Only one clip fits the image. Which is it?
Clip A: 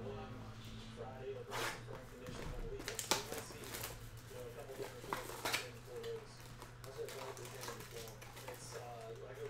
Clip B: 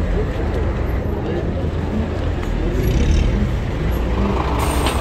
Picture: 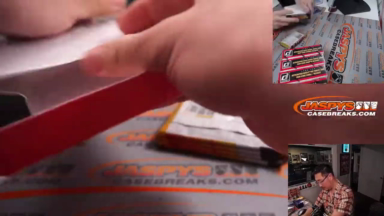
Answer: A